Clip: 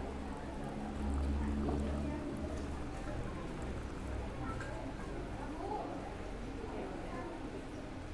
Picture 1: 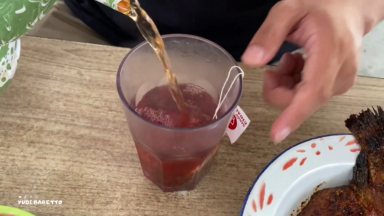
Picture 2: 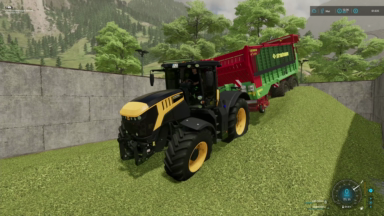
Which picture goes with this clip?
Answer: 1